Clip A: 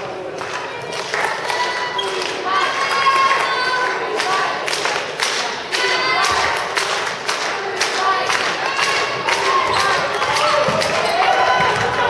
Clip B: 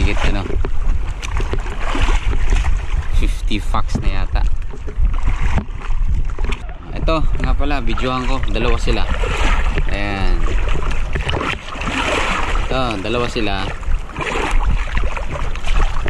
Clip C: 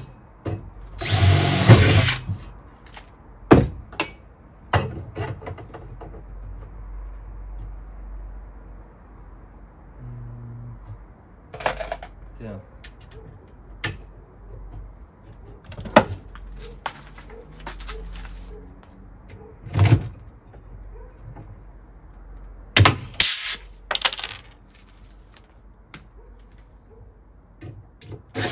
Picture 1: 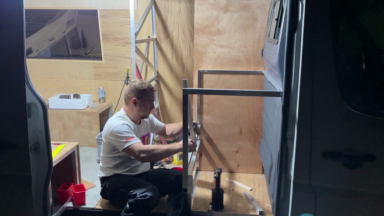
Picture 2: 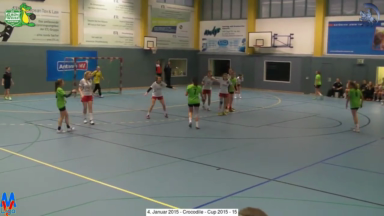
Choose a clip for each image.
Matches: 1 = C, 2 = A